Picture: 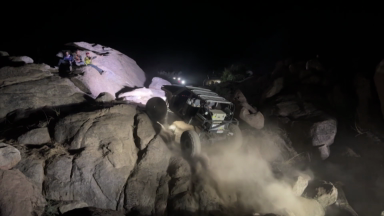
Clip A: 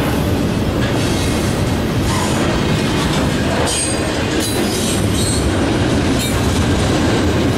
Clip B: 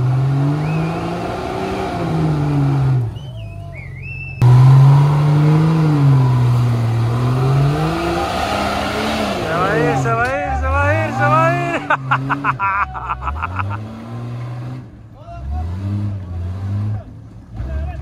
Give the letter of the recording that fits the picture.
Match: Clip B